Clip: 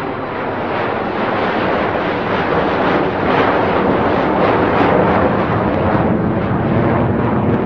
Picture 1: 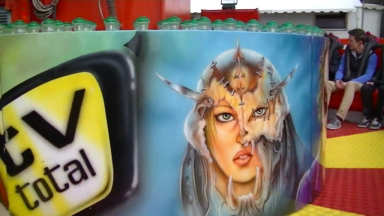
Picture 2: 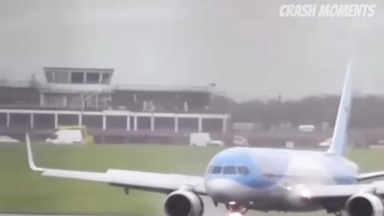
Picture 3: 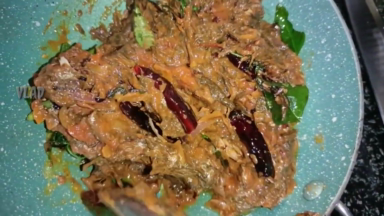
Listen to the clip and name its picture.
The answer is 2